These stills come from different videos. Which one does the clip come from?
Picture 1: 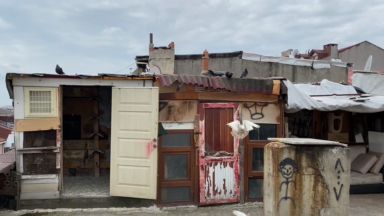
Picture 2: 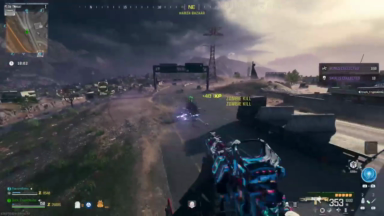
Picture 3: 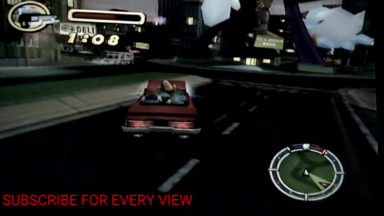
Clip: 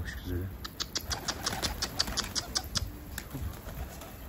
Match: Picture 1